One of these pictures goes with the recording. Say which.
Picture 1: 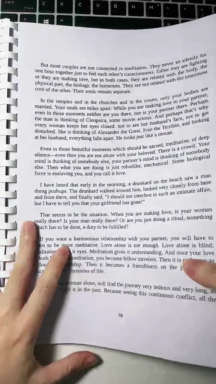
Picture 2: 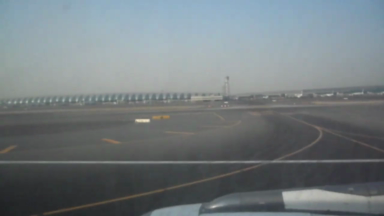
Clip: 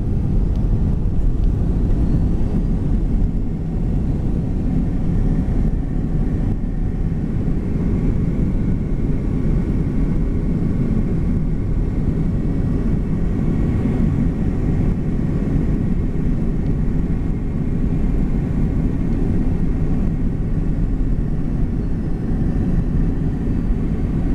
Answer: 2